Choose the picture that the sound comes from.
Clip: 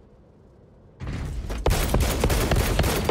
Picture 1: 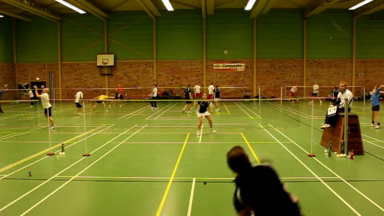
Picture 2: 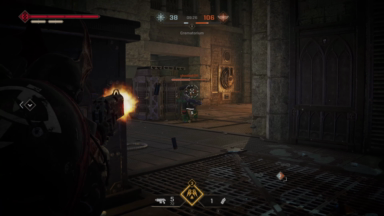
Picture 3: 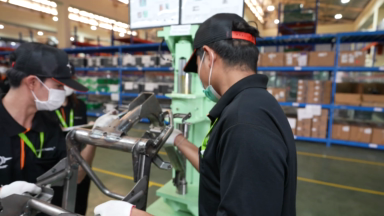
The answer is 2